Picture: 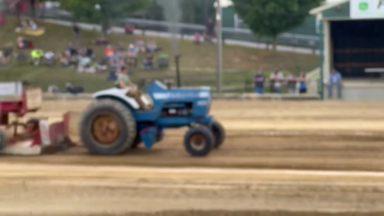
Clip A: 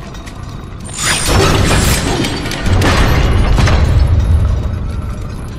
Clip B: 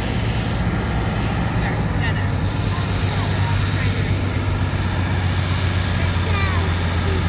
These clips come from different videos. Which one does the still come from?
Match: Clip B